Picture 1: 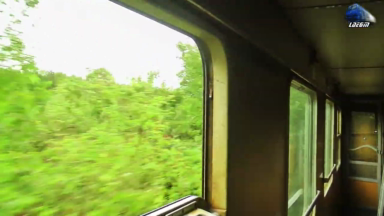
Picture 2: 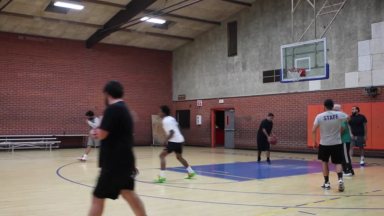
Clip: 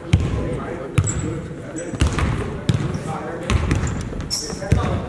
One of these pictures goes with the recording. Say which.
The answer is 2